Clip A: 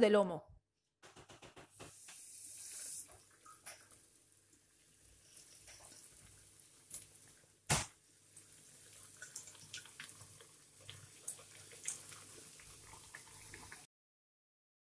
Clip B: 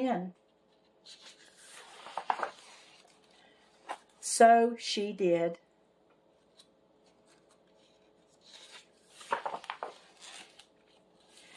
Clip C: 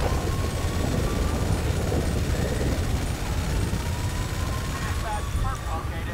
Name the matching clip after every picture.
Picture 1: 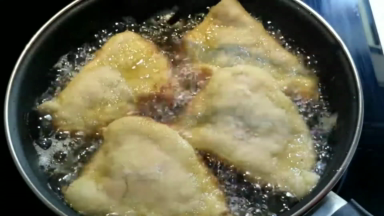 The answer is A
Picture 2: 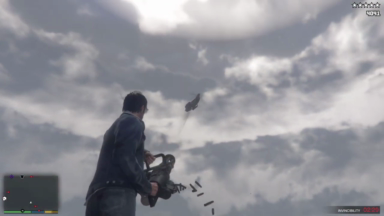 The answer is C